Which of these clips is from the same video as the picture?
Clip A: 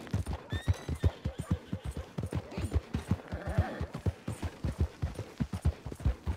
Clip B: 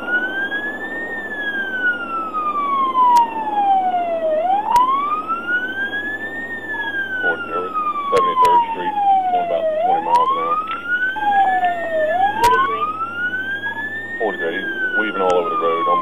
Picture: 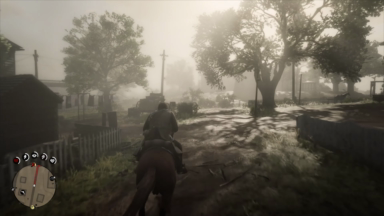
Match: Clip A